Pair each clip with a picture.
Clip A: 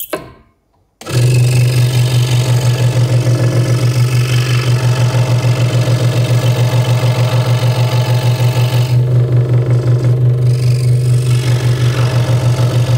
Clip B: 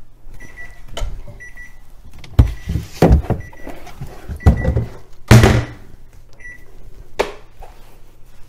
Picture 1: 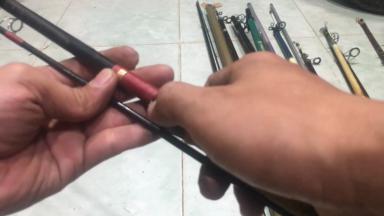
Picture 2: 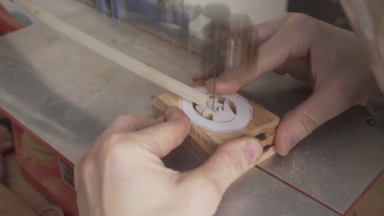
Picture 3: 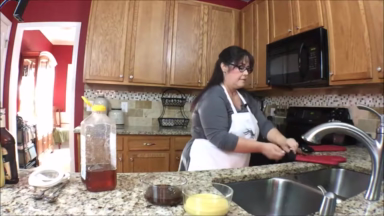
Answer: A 2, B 3